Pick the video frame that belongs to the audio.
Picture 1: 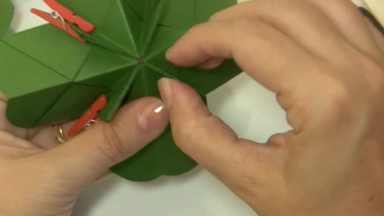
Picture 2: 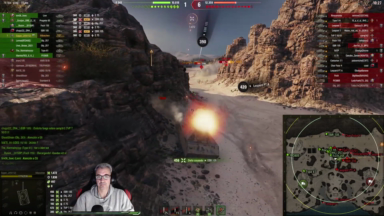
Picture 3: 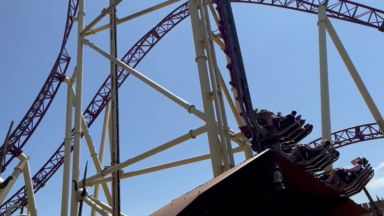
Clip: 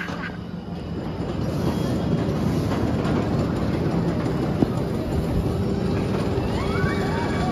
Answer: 3